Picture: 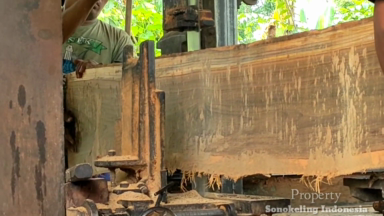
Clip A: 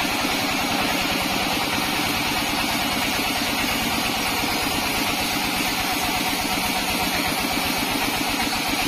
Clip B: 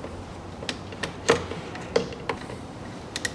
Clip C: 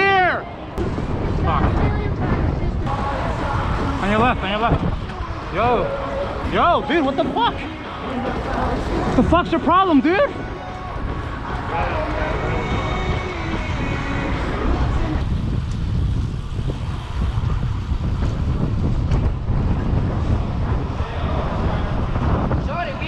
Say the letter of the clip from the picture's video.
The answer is A